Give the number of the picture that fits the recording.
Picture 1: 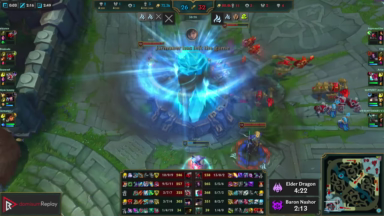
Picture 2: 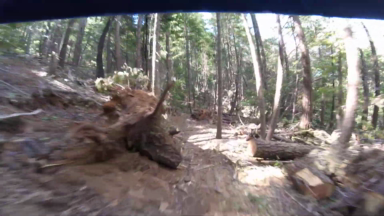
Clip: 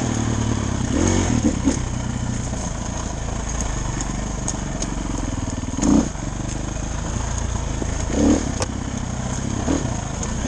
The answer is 2